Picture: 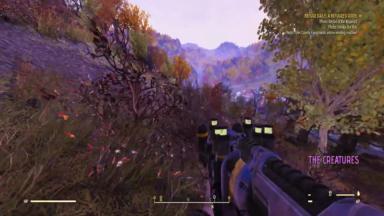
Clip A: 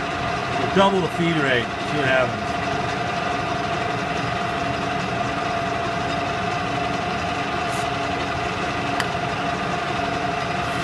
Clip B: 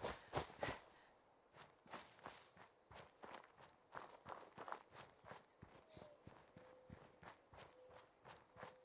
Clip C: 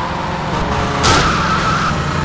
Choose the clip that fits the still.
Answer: B